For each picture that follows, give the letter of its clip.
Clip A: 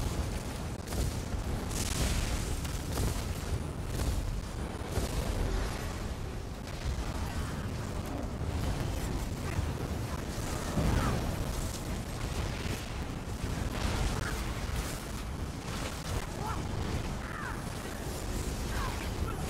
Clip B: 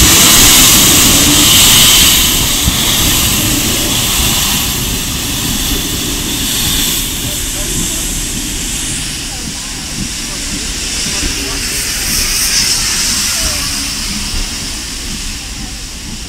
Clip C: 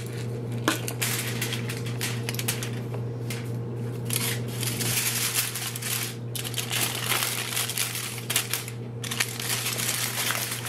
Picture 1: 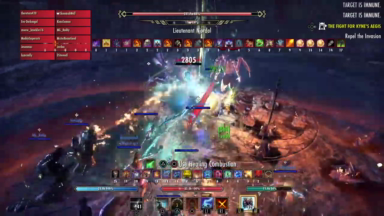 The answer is A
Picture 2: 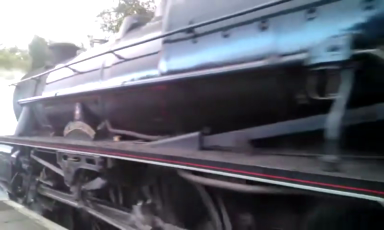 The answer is B